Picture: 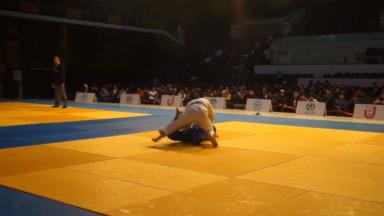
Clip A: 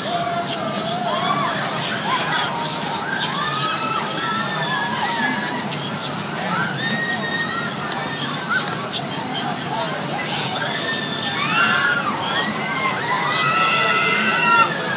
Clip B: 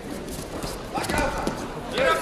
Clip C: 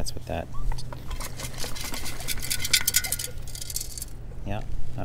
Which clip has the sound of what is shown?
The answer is B